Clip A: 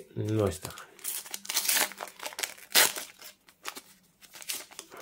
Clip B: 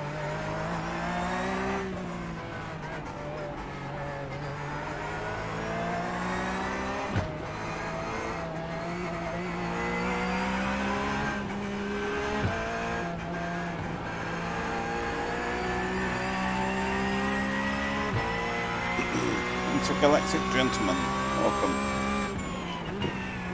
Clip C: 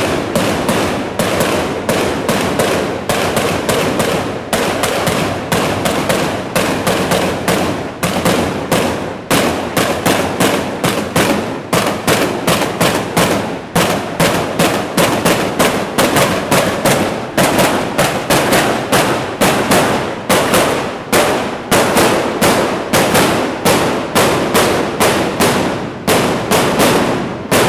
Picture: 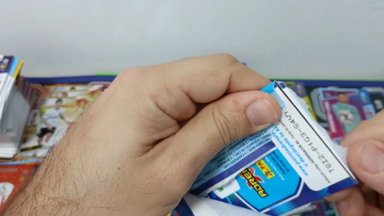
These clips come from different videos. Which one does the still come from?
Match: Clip A